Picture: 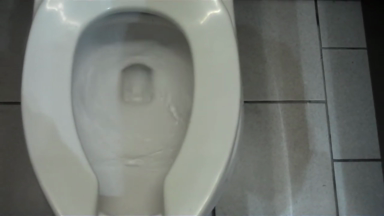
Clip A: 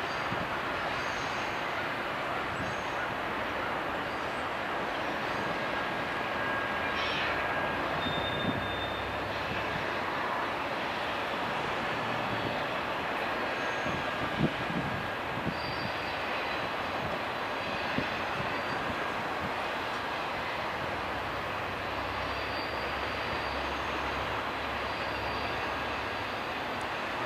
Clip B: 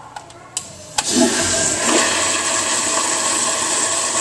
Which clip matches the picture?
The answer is B